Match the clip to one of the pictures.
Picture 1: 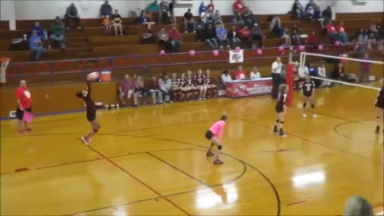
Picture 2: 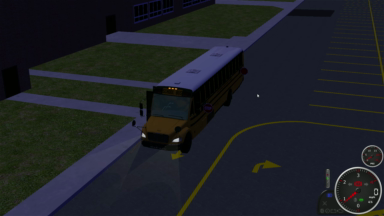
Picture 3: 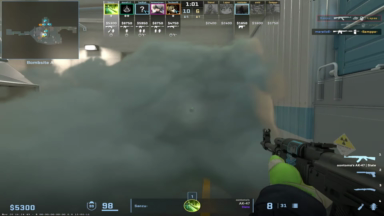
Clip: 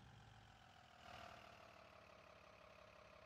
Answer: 2